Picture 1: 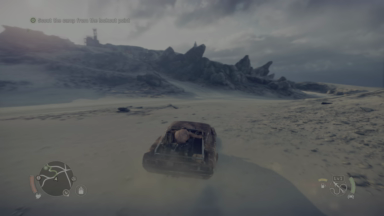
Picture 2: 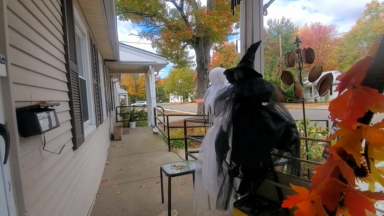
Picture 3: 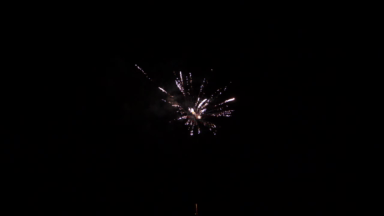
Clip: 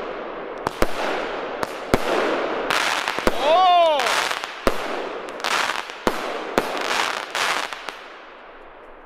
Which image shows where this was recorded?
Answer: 3